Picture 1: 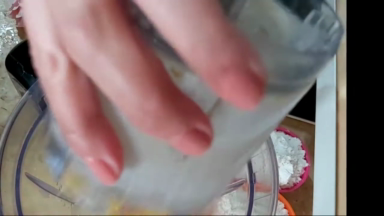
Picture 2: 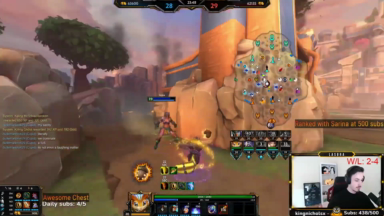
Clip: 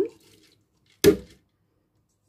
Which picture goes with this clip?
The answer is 1